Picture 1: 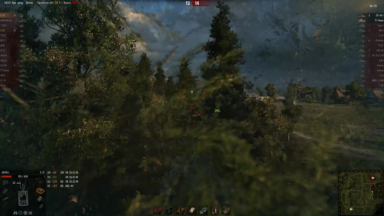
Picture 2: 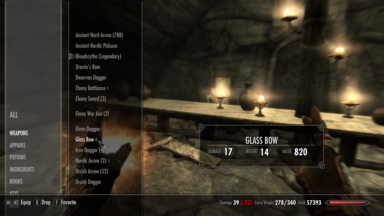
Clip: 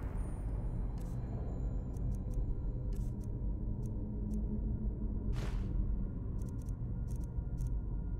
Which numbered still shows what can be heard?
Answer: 2